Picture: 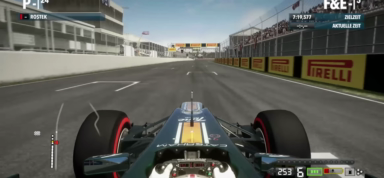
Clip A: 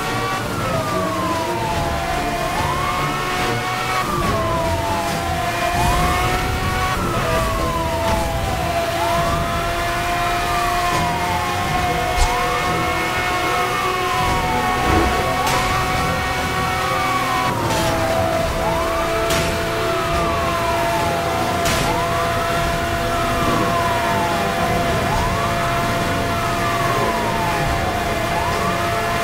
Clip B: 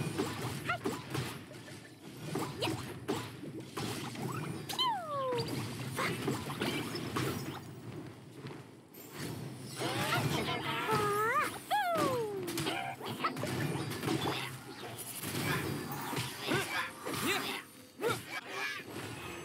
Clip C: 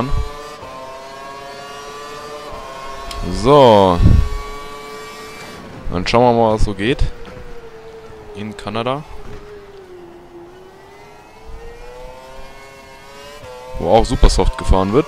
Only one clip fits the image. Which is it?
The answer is C